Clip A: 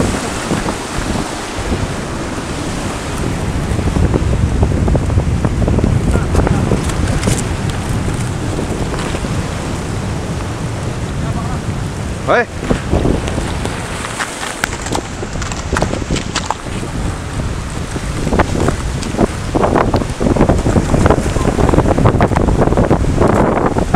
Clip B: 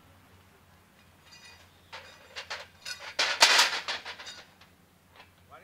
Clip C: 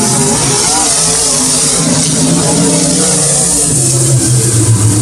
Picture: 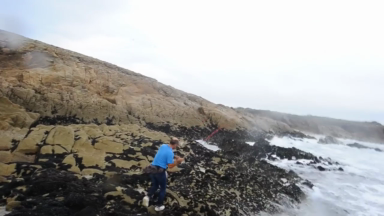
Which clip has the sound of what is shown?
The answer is A